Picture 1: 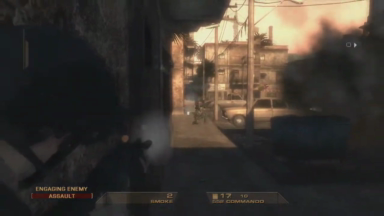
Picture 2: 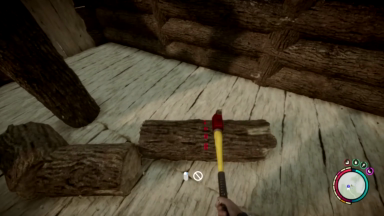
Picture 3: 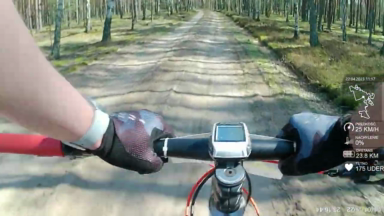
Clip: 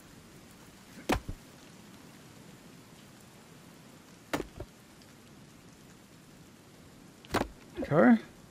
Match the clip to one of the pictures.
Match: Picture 2